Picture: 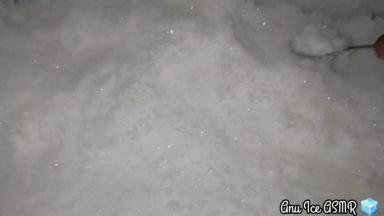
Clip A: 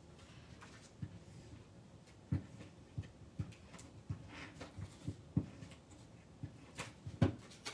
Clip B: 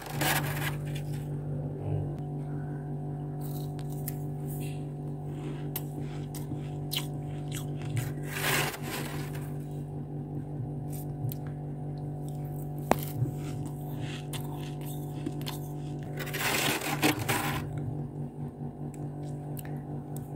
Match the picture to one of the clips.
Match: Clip B